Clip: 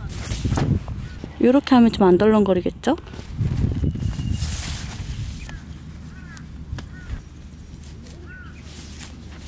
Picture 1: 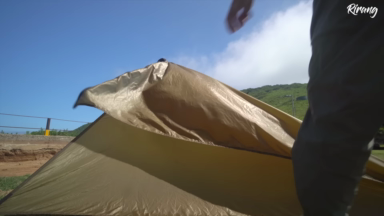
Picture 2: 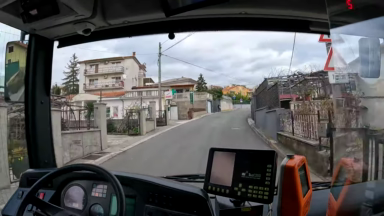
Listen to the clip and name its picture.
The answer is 1